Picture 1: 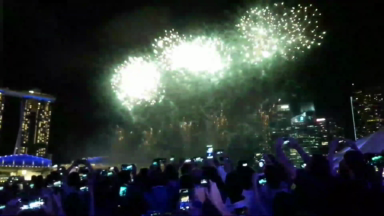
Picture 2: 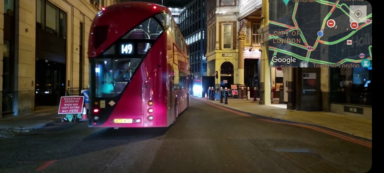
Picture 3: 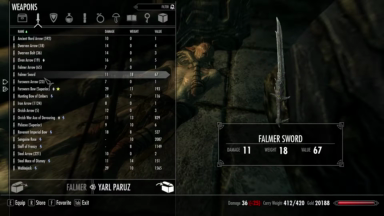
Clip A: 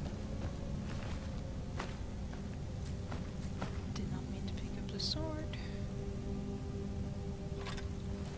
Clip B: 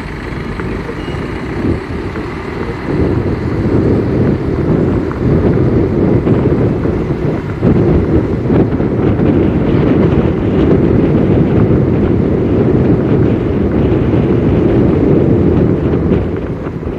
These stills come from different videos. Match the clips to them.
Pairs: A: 3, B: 2